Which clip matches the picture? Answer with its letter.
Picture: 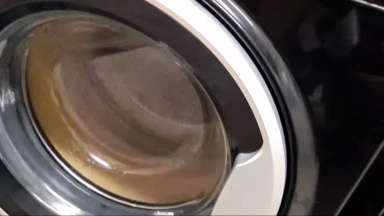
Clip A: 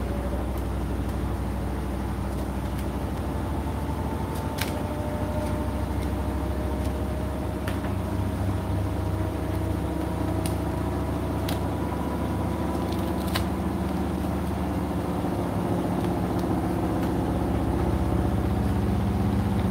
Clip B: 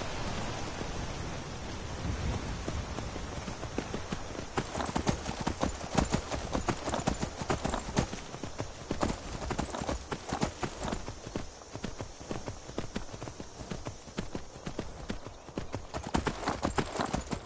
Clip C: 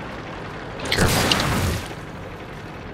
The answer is A